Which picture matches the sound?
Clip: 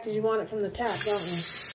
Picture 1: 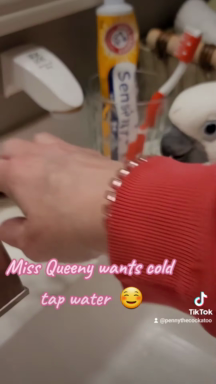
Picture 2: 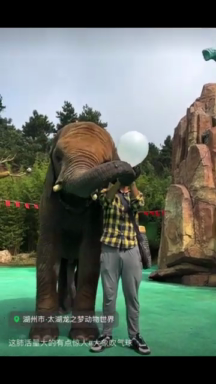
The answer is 1